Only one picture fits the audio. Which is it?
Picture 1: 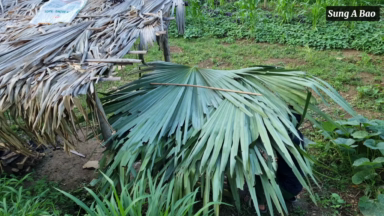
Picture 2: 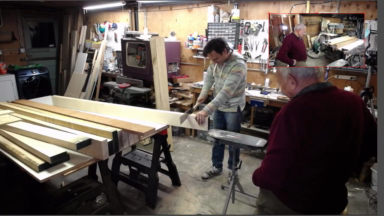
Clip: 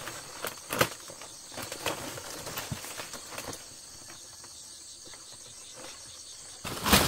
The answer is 1